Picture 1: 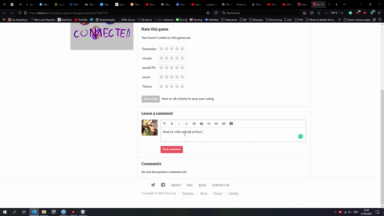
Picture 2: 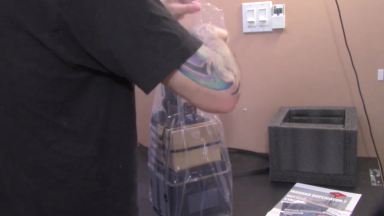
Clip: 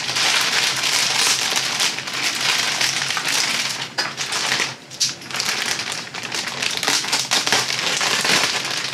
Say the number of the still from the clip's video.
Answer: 2